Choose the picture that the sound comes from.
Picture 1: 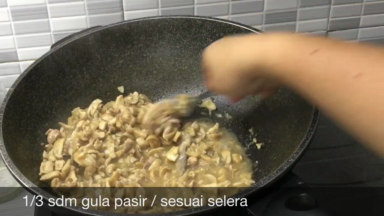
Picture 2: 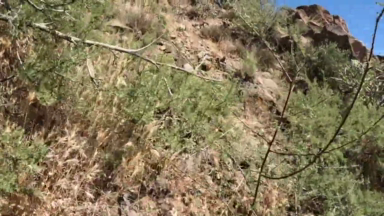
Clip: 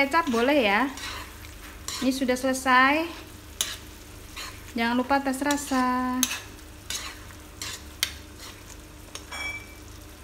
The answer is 1